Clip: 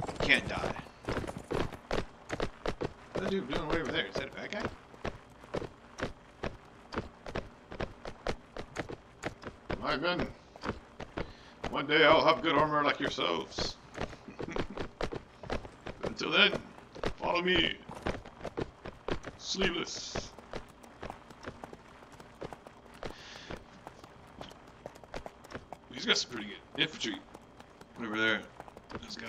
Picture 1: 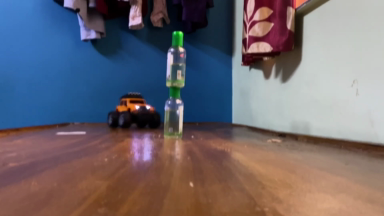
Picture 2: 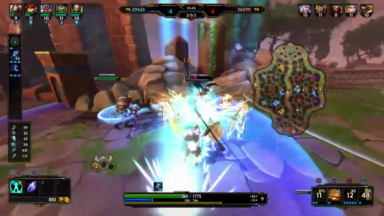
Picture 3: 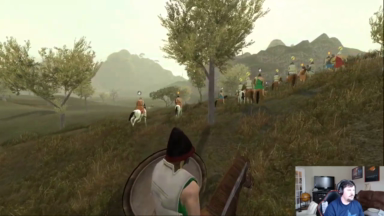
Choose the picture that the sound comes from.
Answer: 3